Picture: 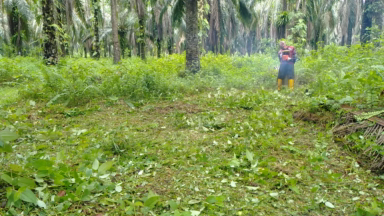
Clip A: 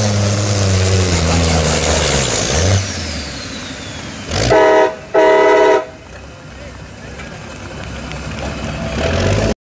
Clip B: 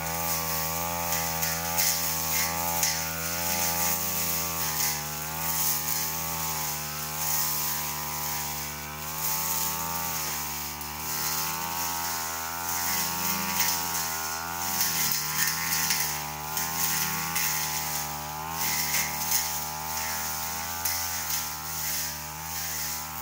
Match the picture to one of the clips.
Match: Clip B